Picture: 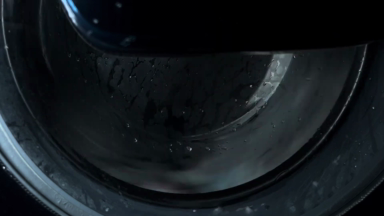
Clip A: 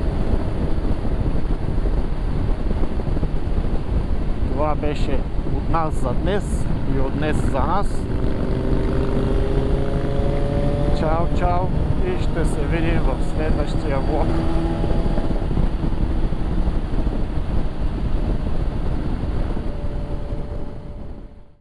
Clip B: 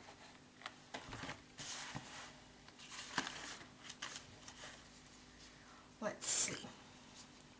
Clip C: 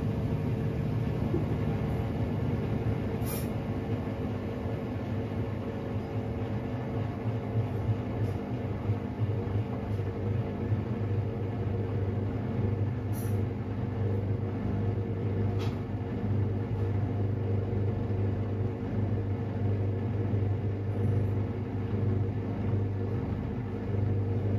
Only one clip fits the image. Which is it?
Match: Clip C